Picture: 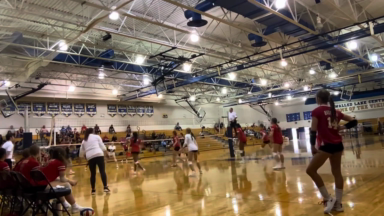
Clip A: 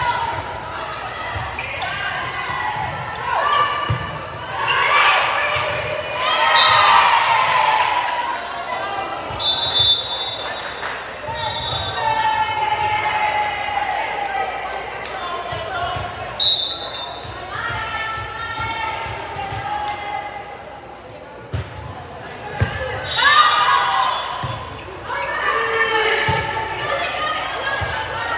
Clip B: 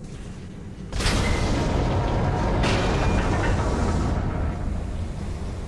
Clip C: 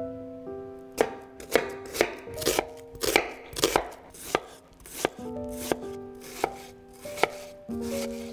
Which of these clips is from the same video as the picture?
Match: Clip A